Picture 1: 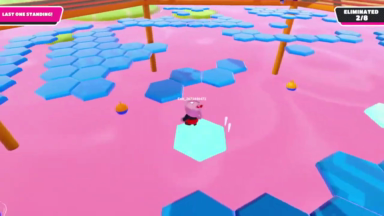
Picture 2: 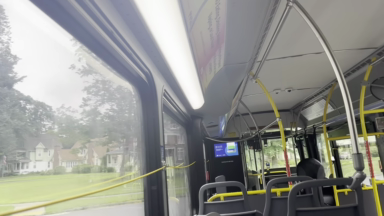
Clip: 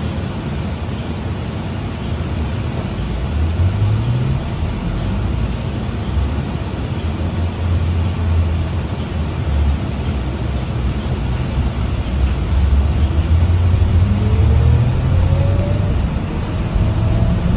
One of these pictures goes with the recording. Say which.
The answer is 2